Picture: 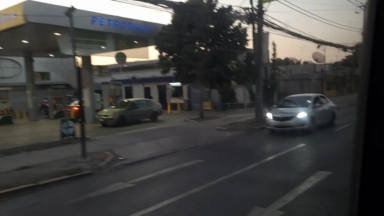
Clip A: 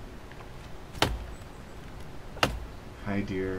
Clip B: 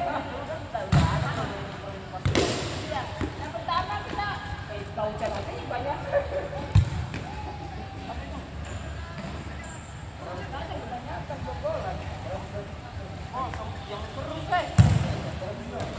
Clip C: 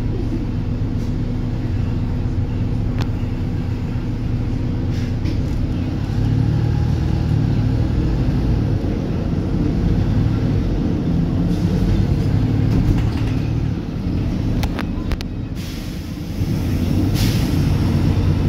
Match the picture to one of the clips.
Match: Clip C